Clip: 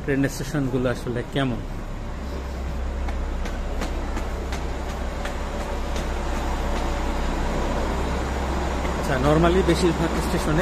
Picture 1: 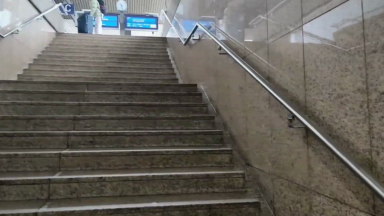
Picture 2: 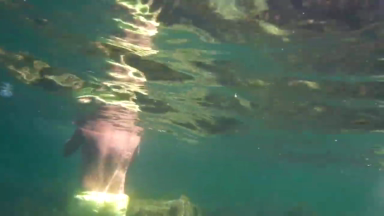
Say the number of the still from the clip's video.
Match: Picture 1